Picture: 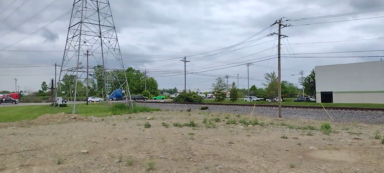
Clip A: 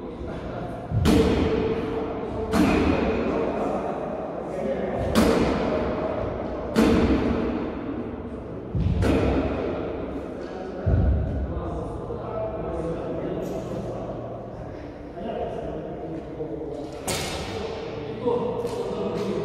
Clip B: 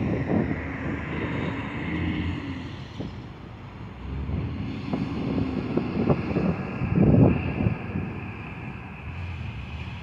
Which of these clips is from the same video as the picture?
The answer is B